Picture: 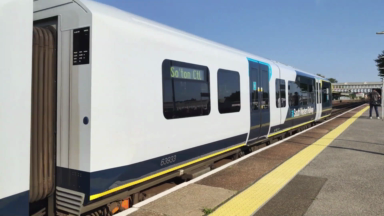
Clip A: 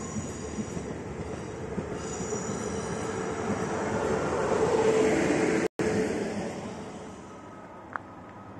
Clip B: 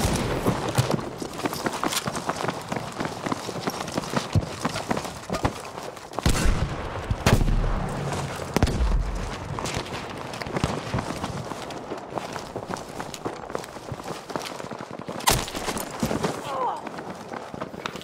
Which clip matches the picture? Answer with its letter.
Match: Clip A